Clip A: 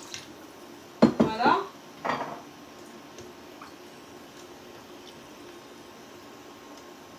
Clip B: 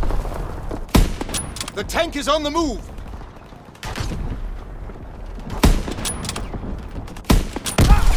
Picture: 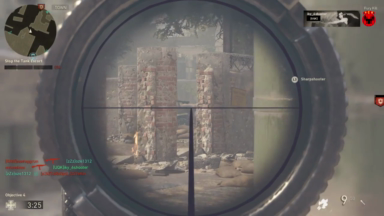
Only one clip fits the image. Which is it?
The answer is B